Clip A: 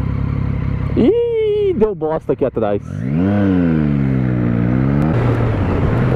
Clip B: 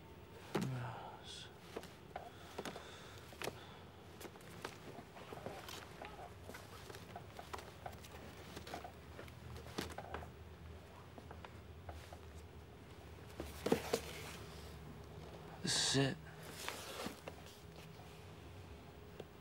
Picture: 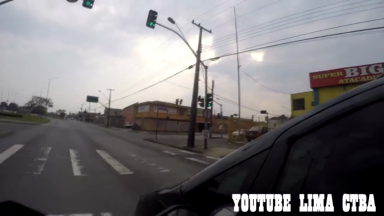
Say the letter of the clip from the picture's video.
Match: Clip A